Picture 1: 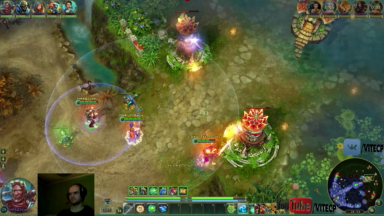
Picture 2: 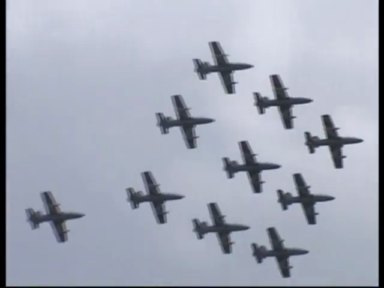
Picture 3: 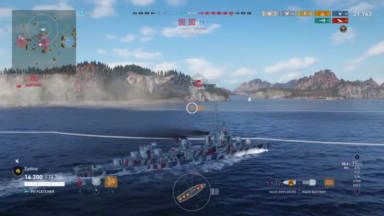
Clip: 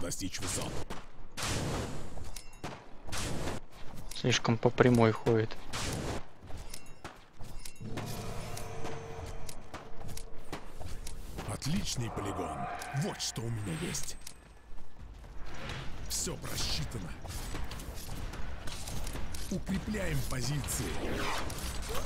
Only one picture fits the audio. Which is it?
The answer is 1